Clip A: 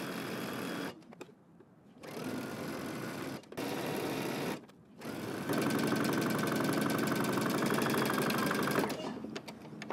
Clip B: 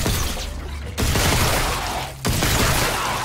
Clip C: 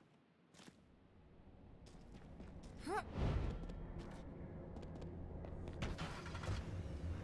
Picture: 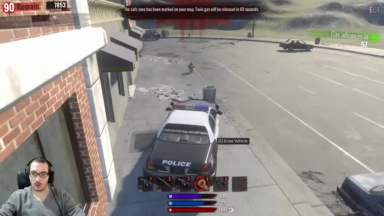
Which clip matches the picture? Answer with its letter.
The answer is C